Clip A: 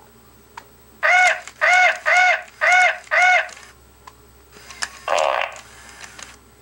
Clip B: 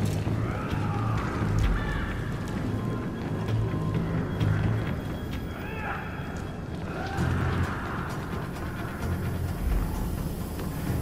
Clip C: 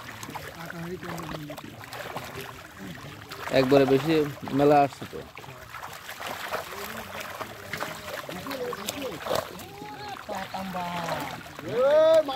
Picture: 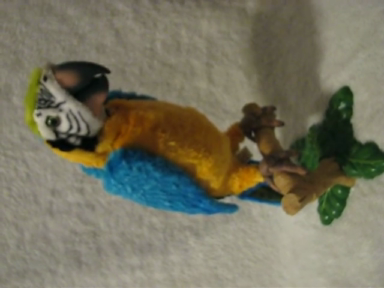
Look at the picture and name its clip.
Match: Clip A